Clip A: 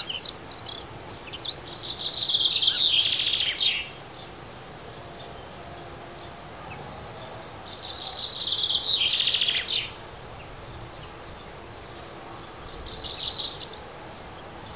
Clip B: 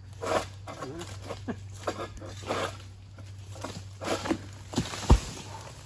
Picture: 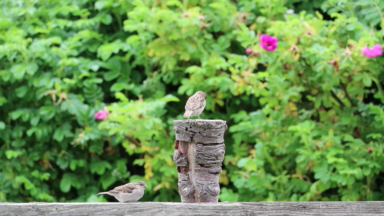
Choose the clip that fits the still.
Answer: A